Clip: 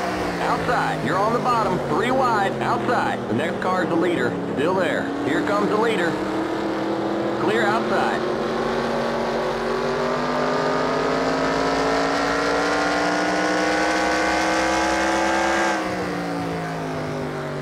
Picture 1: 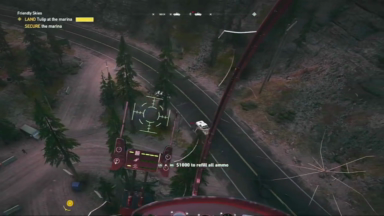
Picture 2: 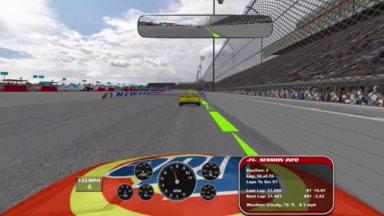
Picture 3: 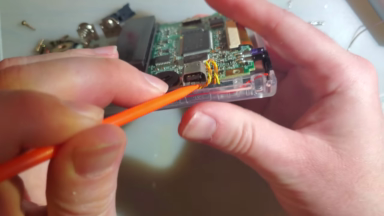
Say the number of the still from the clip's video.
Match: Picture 2